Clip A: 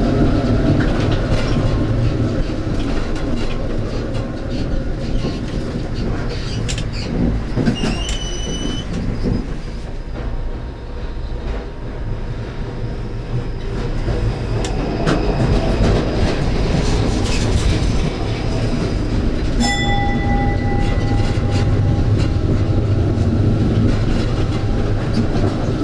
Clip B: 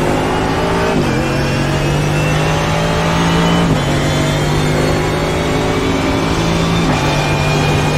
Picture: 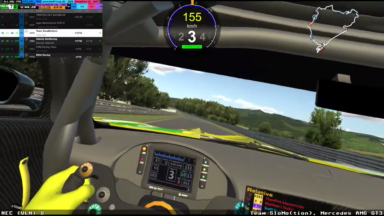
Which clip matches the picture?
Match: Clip B